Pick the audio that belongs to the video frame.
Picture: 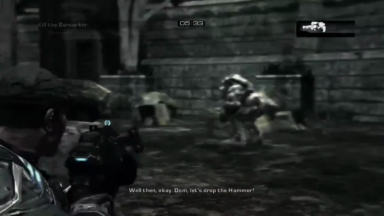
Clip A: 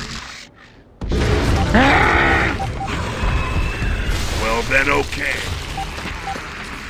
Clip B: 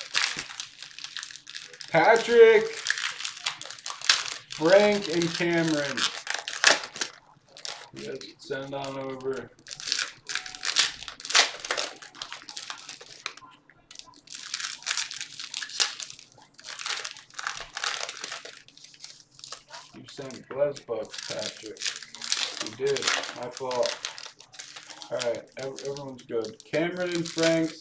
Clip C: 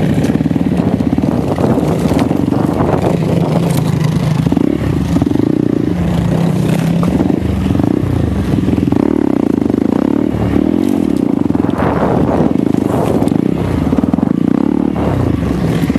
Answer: A